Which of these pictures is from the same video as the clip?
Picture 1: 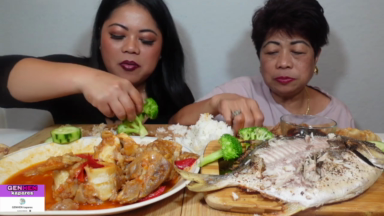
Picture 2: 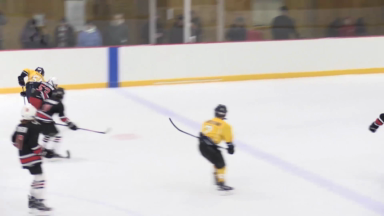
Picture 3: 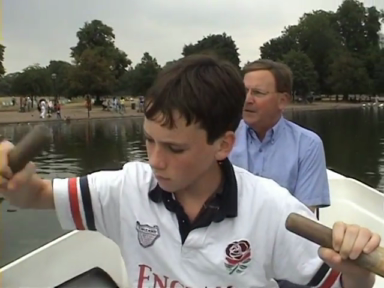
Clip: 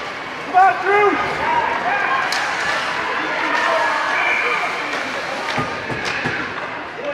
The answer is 2